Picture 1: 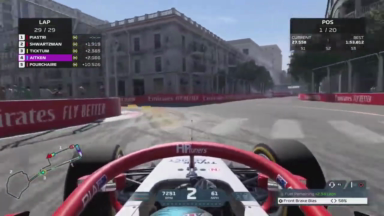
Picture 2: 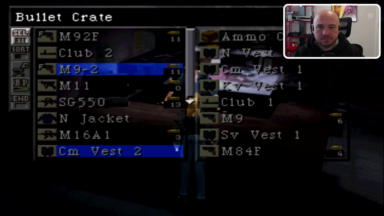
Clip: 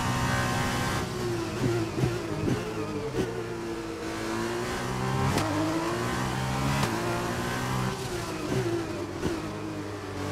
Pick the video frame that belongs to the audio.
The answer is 1